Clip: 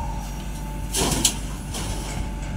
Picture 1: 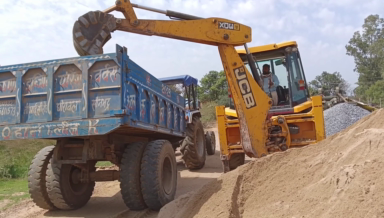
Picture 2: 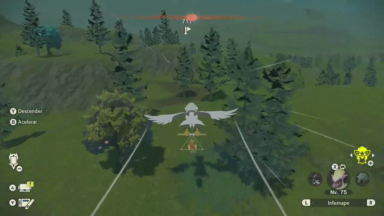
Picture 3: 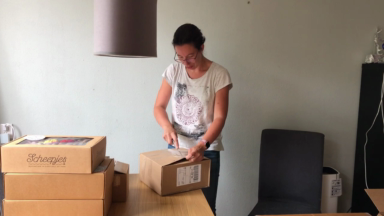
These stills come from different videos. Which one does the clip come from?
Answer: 1